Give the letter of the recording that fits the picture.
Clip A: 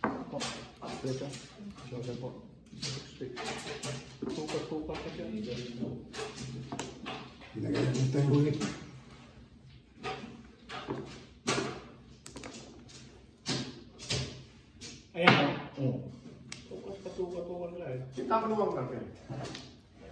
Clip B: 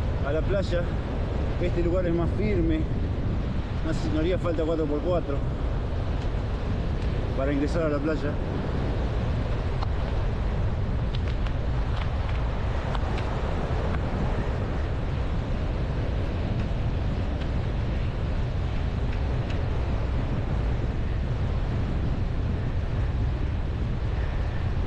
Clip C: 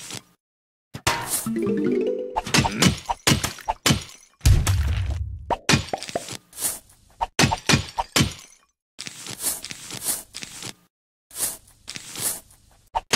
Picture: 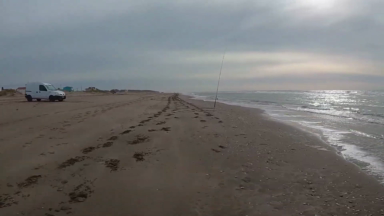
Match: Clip B